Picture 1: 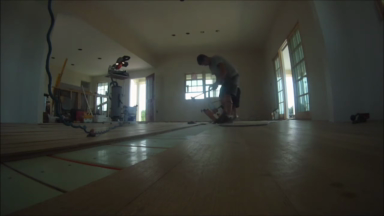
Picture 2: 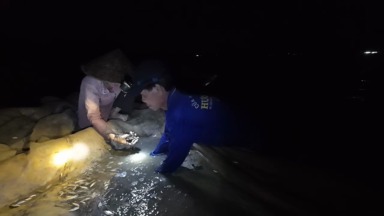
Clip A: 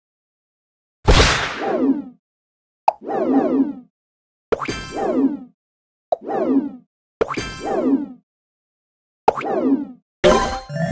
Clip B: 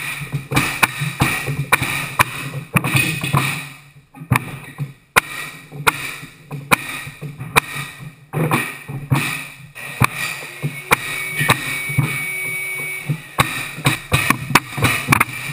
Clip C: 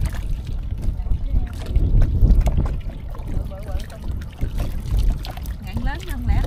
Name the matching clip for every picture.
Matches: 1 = B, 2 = C